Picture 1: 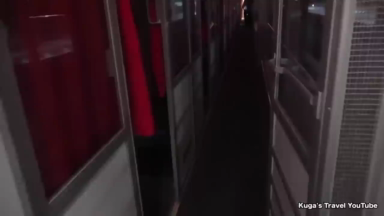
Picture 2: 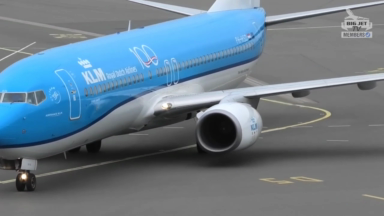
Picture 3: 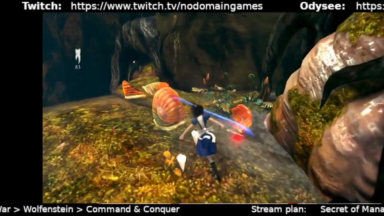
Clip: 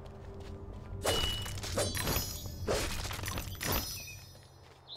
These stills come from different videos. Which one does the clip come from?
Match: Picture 3